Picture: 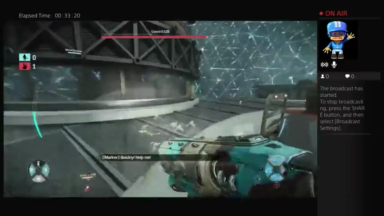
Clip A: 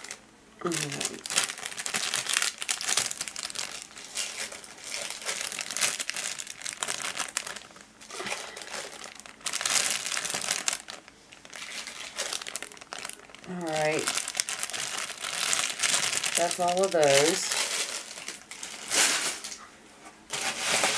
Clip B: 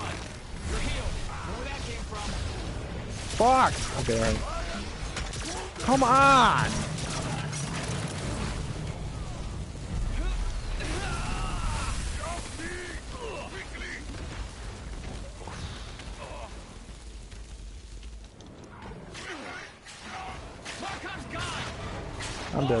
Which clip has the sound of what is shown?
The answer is B